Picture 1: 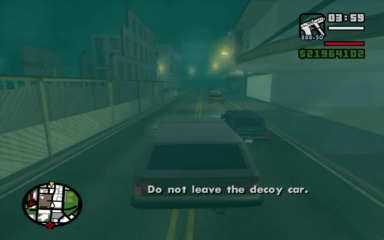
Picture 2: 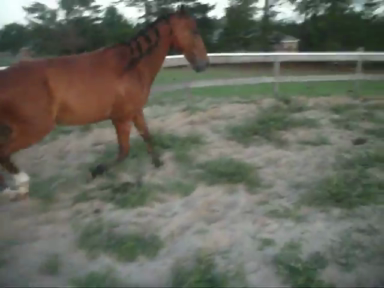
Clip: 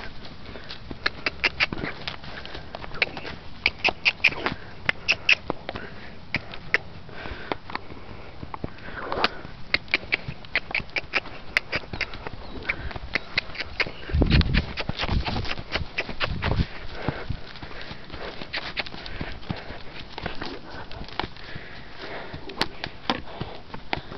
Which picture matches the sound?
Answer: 2